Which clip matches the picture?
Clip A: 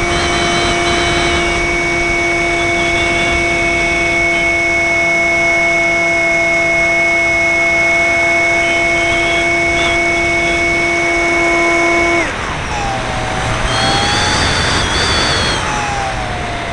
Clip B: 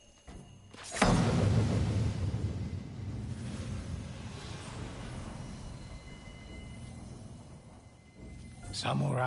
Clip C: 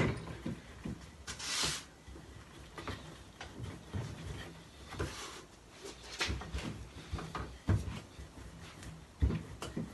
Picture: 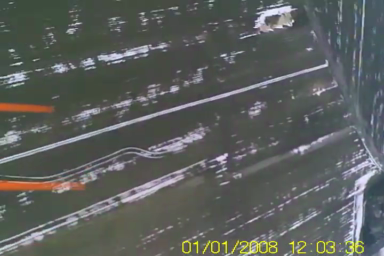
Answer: A